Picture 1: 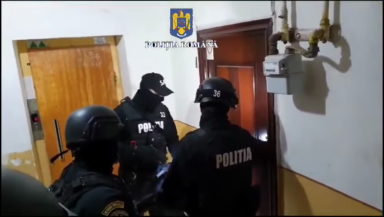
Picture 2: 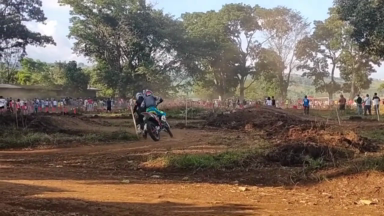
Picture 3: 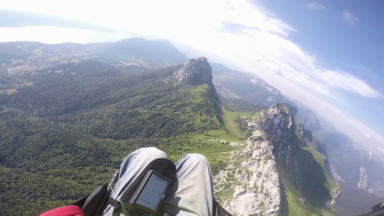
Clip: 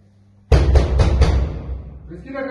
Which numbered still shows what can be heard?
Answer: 1